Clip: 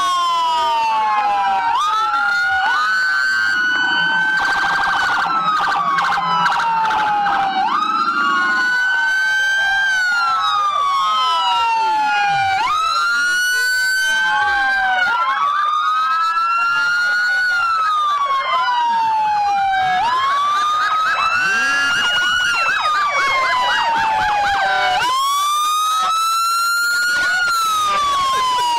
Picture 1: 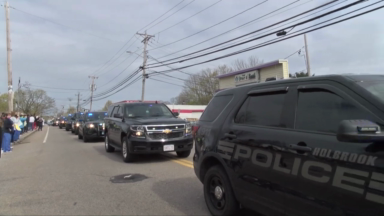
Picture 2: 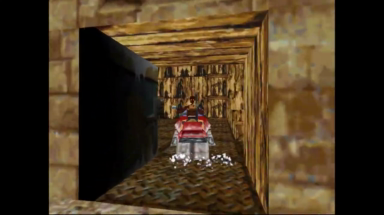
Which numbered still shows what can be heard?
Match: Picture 1